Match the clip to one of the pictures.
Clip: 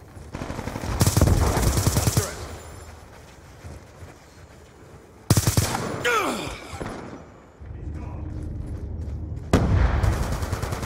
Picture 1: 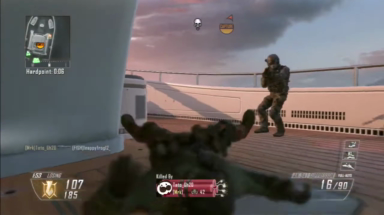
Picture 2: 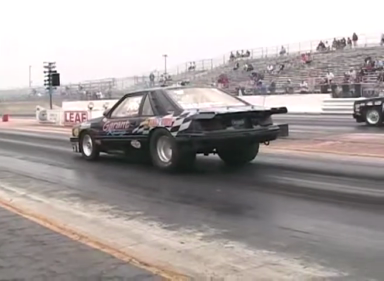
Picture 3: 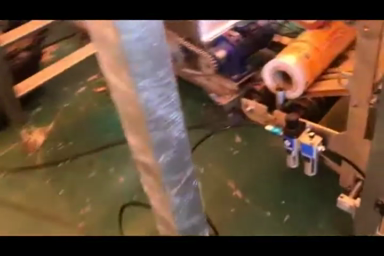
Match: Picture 1